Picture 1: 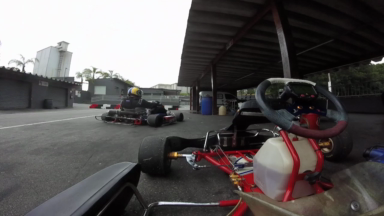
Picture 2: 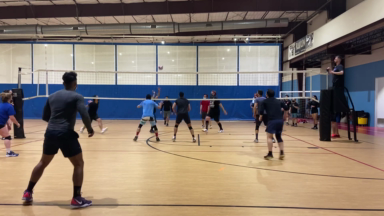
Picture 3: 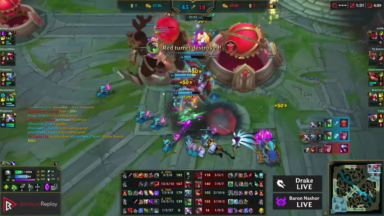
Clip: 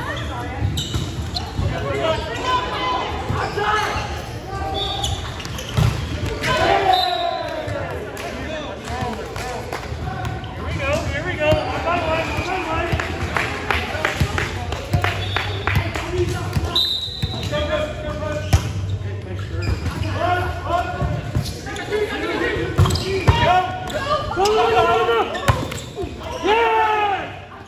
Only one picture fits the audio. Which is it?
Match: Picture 2